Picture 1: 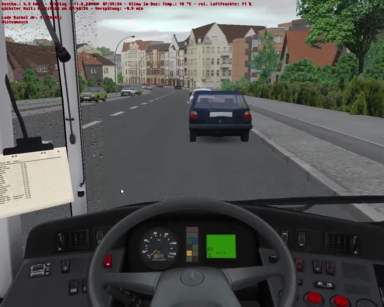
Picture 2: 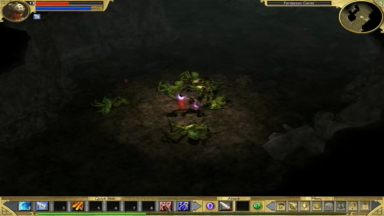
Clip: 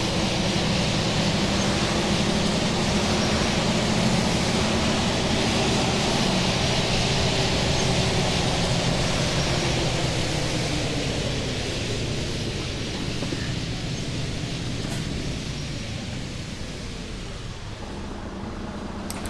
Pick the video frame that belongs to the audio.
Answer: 1